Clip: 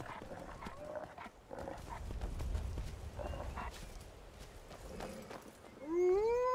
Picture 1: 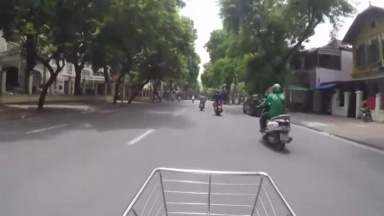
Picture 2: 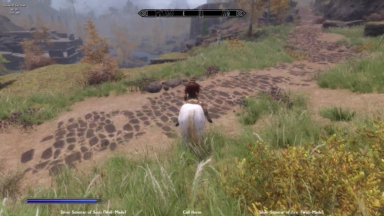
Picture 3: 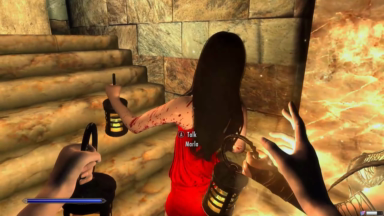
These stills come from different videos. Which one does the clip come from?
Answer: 2